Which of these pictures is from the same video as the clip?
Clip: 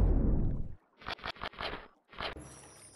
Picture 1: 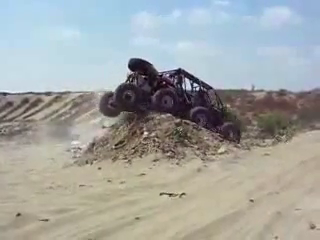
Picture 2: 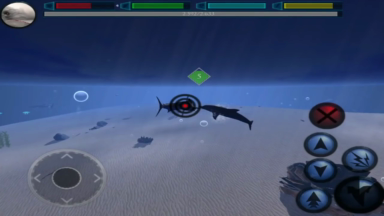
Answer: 2